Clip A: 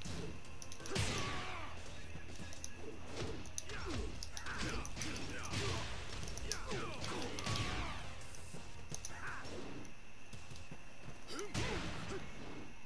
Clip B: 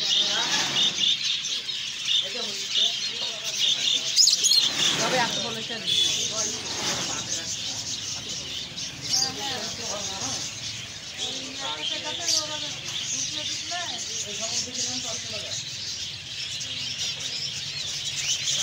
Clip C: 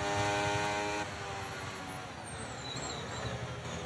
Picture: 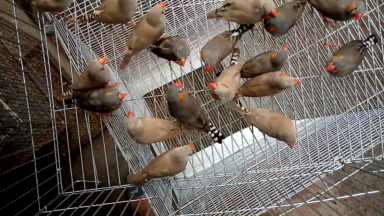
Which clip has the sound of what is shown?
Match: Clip B